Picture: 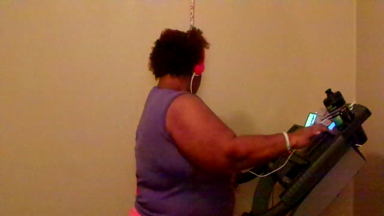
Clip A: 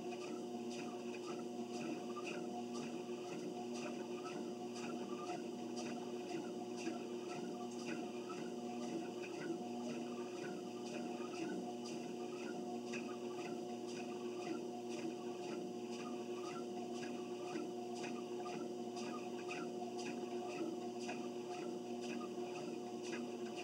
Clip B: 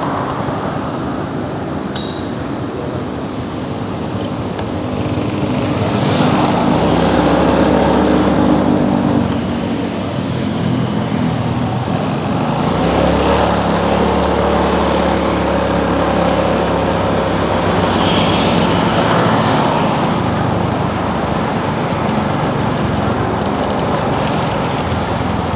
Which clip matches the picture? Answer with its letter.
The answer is A